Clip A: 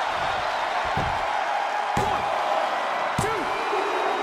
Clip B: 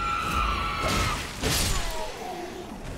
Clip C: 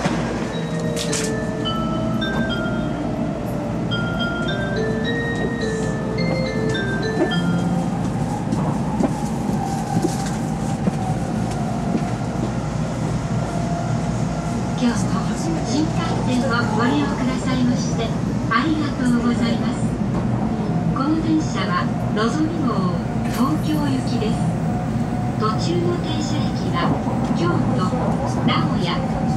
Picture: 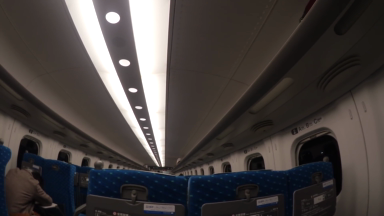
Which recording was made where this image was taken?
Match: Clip C